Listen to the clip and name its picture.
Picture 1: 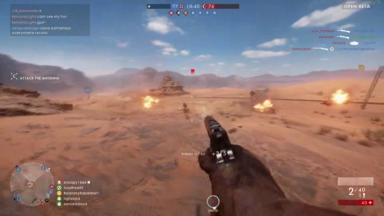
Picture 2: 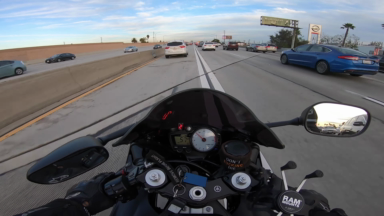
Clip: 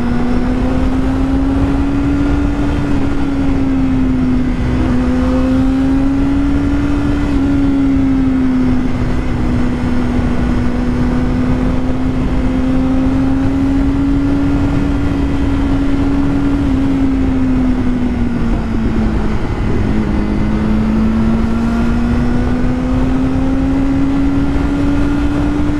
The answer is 2